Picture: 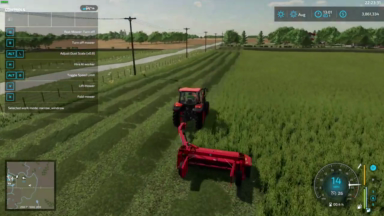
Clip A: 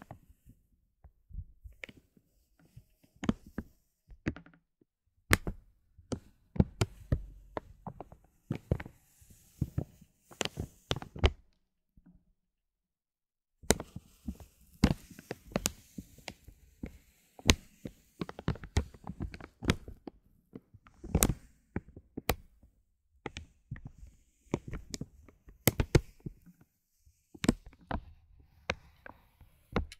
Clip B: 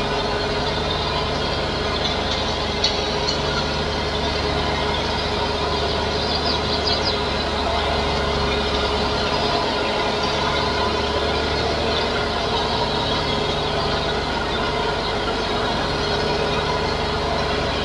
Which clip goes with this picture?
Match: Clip B